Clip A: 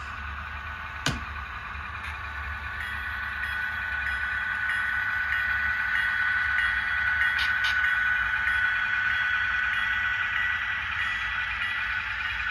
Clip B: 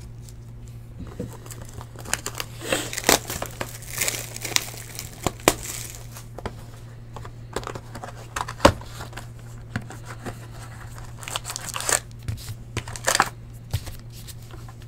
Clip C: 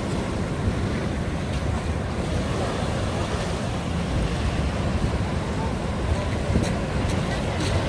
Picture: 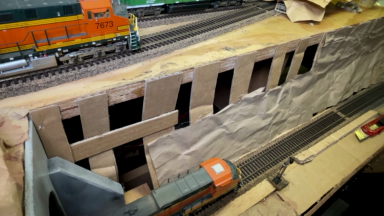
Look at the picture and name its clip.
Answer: A